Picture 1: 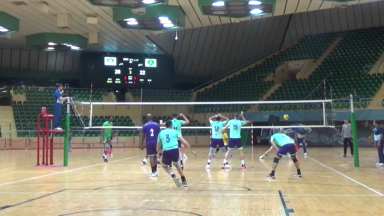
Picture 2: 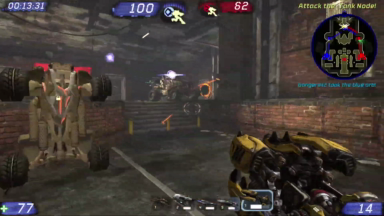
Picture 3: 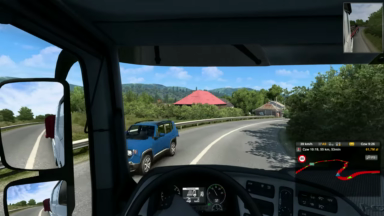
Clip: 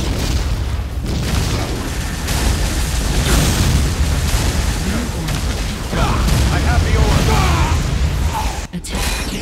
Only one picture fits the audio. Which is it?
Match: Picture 2